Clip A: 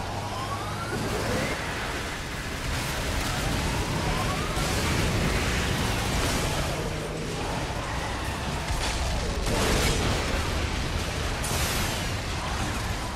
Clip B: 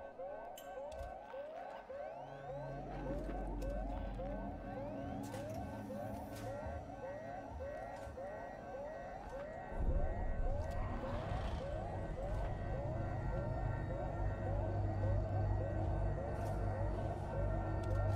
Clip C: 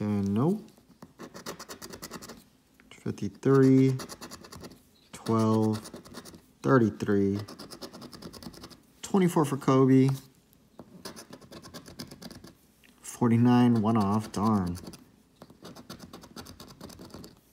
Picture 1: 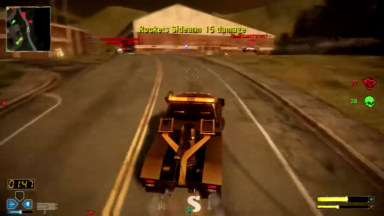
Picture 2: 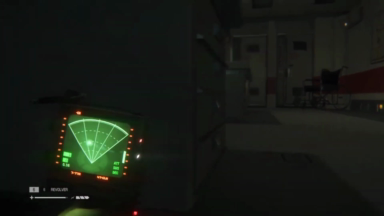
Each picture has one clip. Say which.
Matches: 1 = A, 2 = B